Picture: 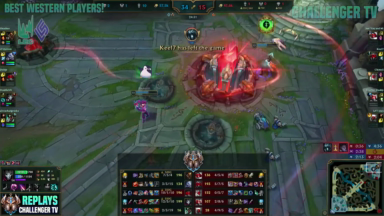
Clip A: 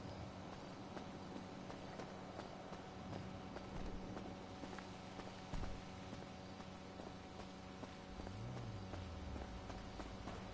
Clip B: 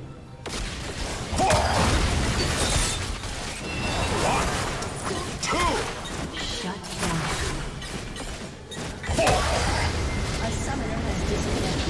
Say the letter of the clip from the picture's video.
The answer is B